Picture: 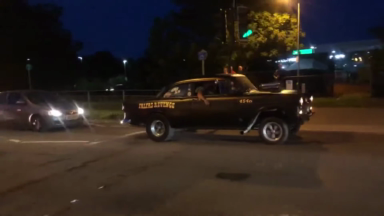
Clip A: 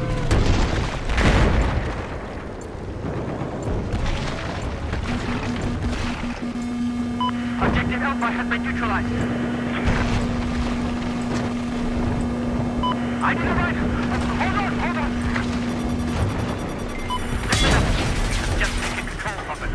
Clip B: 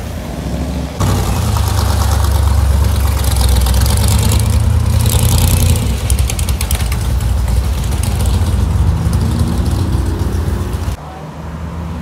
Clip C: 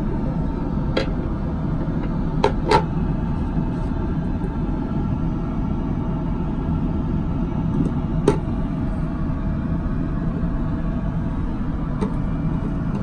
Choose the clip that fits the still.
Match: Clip B